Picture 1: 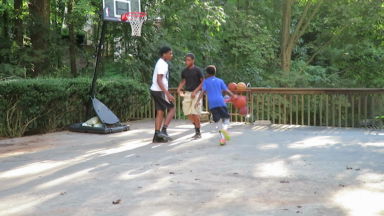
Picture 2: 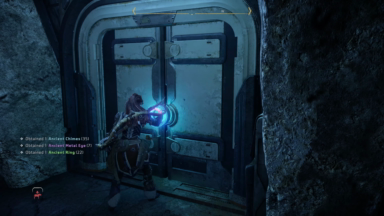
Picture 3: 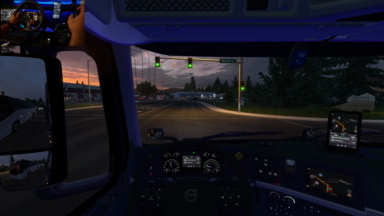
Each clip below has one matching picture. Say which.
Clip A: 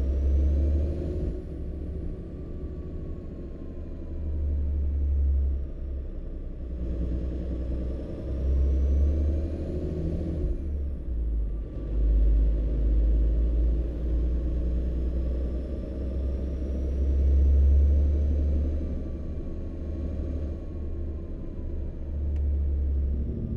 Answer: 3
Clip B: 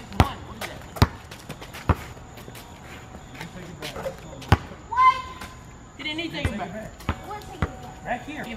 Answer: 1